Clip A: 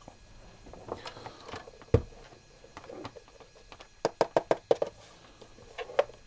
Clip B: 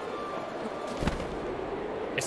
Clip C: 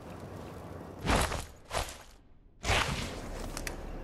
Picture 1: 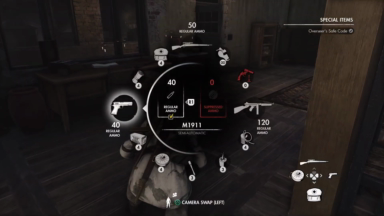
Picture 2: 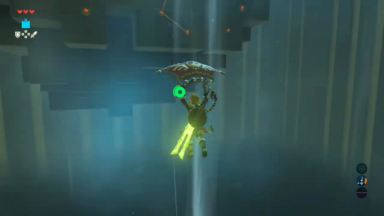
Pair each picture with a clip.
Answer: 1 C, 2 B